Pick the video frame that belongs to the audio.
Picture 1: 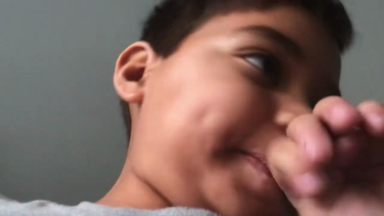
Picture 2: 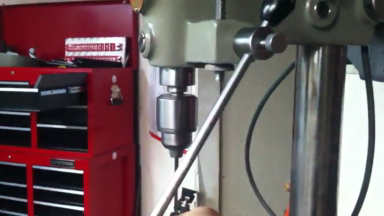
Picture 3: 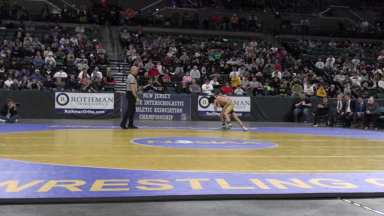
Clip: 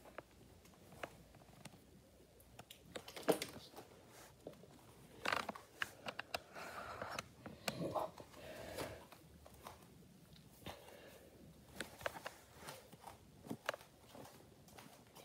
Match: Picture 1